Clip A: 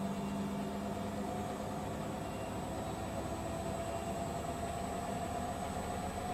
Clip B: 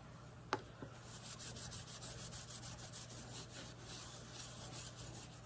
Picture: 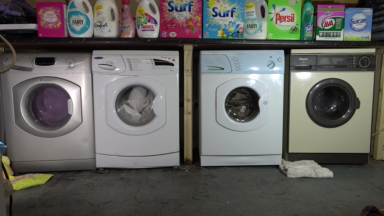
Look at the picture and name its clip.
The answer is A